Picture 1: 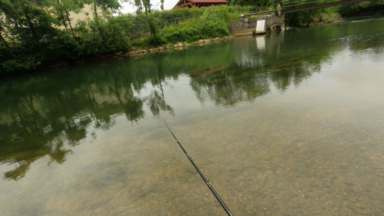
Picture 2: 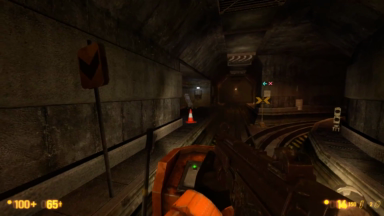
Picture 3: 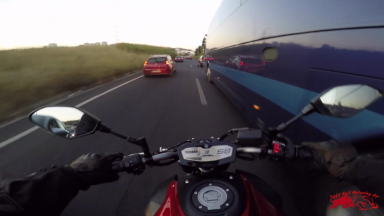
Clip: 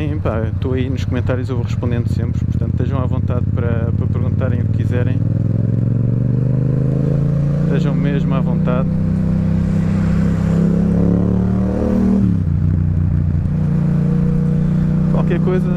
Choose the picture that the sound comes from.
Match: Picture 3